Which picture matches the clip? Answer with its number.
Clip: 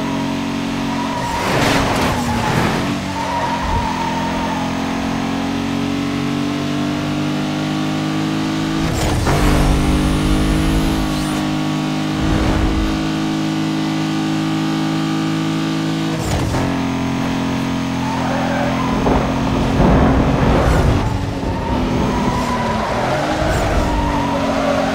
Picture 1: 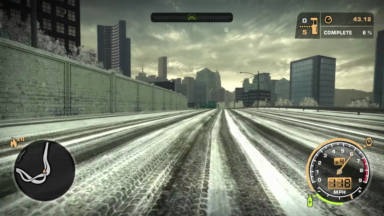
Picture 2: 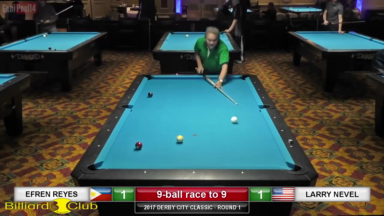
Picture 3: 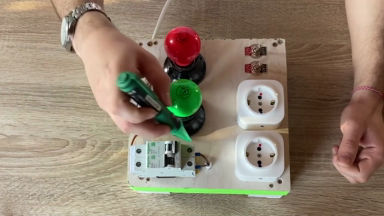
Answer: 1